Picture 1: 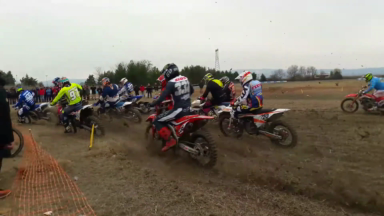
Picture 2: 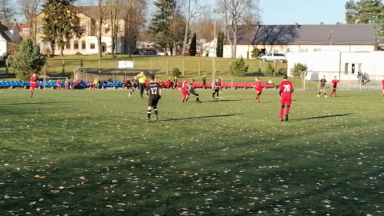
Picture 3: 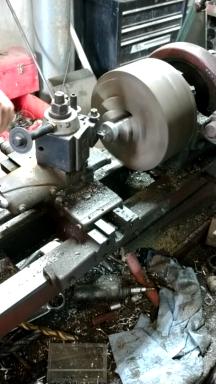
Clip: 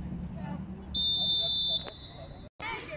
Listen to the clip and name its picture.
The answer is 2